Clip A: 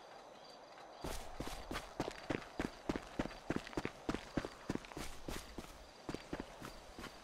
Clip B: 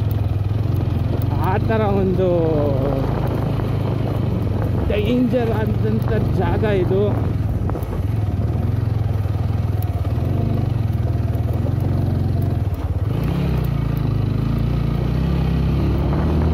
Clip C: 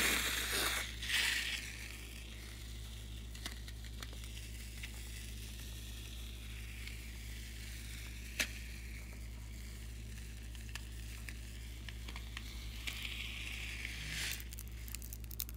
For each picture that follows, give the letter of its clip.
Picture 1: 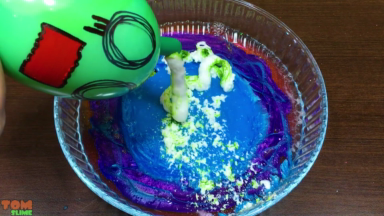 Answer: C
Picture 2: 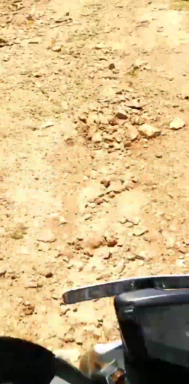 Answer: B